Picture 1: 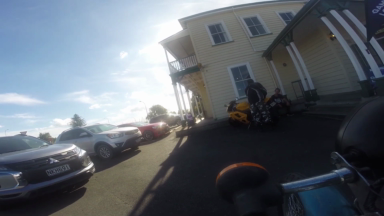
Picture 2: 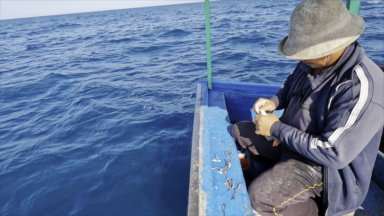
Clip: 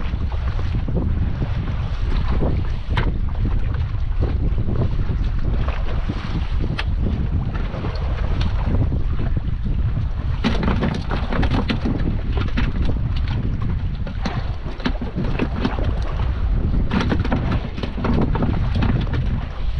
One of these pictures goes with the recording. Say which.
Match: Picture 2